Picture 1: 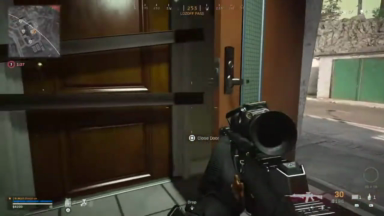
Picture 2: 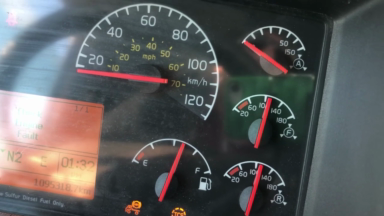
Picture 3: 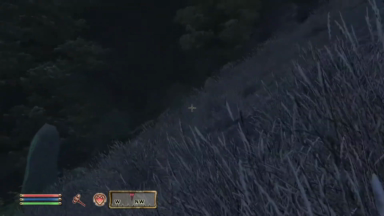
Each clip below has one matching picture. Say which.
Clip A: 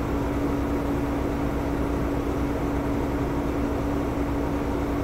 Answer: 2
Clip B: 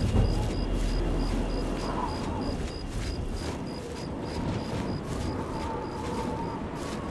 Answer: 3